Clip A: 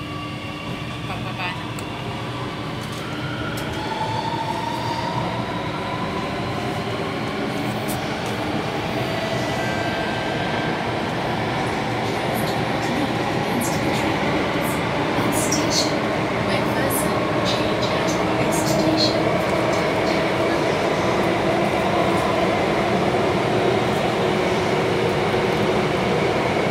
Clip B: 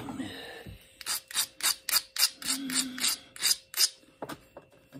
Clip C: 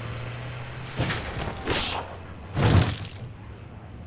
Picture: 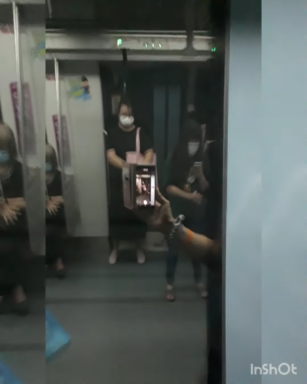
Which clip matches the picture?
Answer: A